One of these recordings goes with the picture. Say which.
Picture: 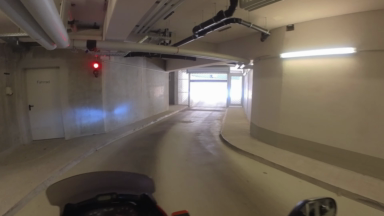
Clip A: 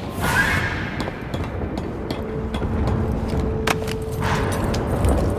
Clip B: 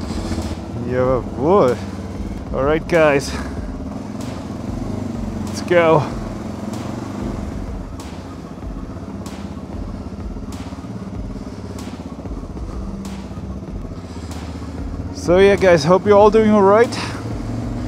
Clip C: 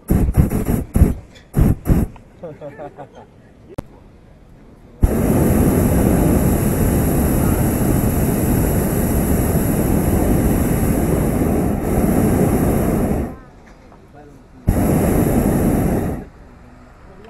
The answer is B